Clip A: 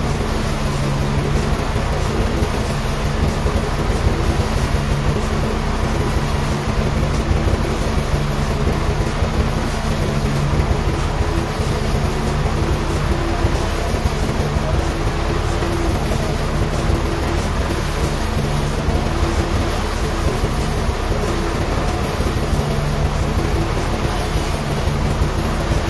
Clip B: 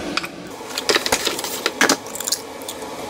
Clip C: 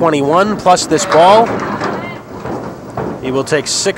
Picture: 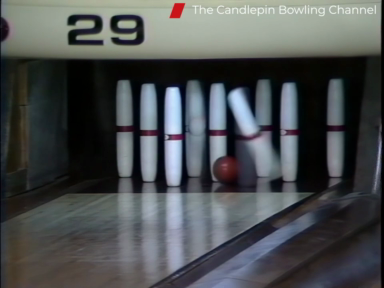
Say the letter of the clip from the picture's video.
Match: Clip C